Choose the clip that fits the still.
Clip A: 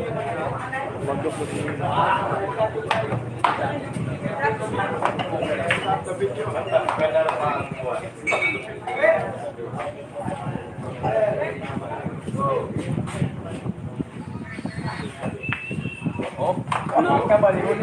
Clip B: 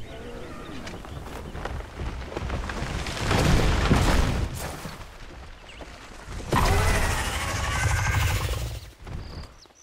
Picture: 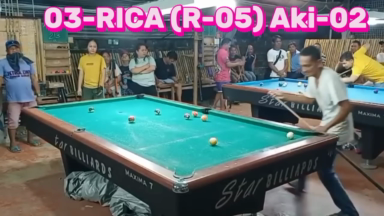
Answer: A